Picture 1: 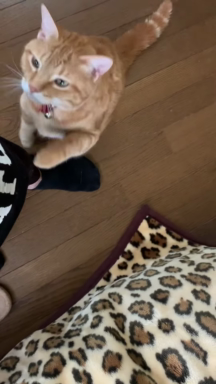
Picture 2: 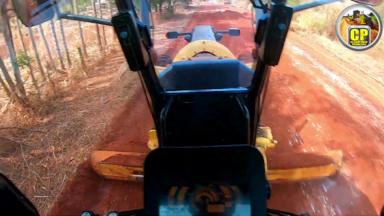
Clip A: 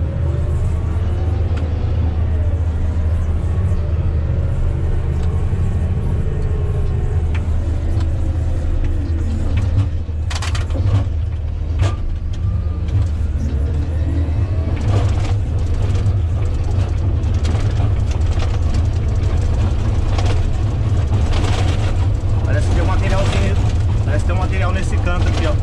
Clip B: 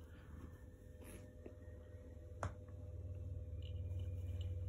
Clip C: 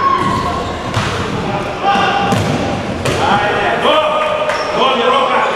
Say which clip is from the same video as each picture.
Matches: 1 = B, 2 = A